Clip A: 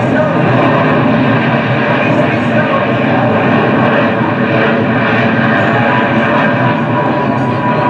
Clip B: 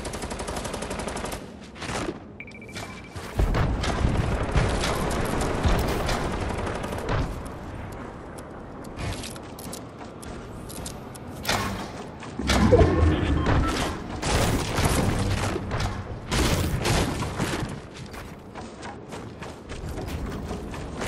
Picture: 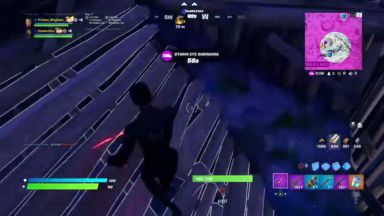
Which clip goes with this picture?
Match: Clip B